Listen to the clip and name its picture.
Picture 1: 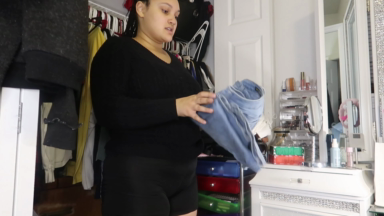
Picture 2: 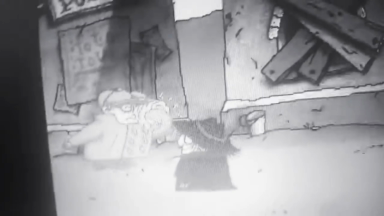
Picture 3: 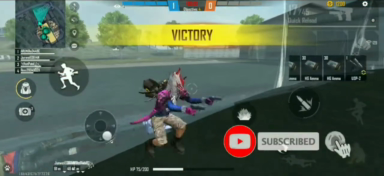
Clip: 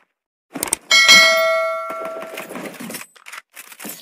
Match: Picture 3